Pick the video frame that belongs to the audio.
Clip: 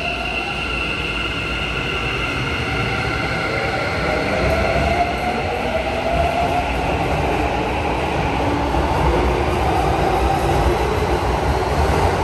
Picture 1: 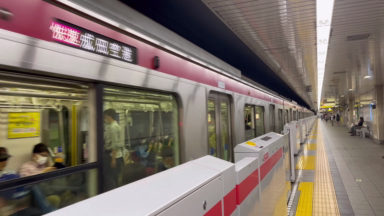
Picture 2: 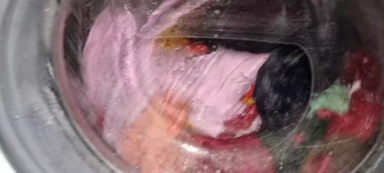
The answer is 1